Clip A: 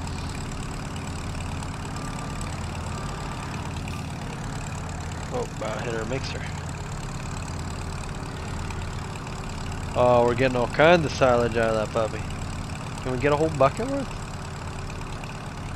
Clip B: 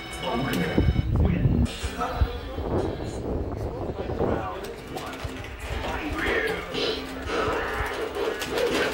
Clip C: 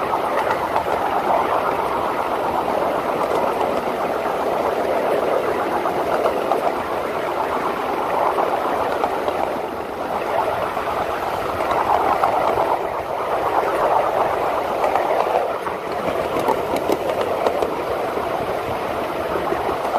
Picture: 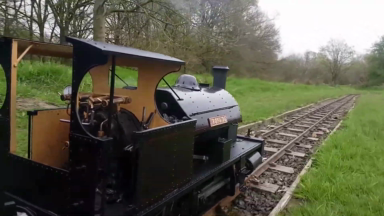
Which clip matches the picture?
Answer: C